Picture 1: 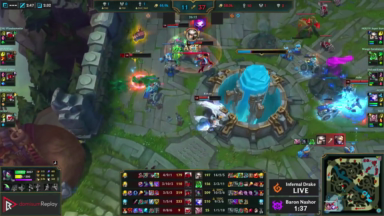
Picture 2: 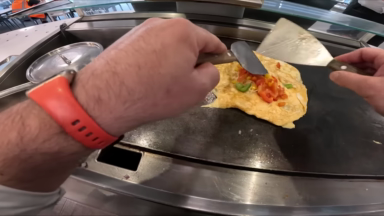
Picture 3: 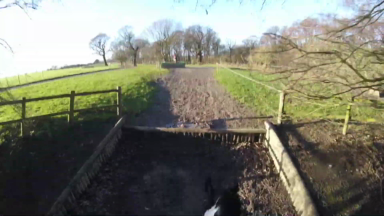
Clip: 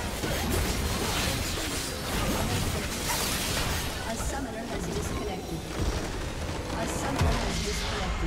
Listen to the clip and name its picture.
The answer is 1